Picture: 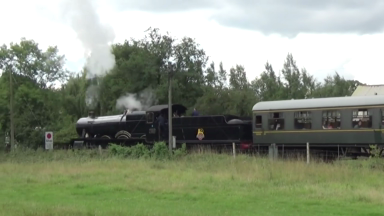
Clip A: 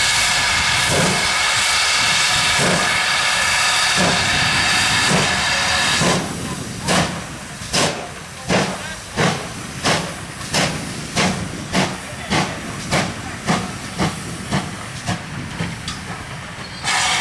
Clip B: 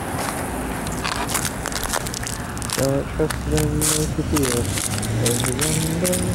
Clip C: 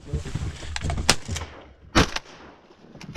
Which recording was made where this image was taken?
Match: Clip A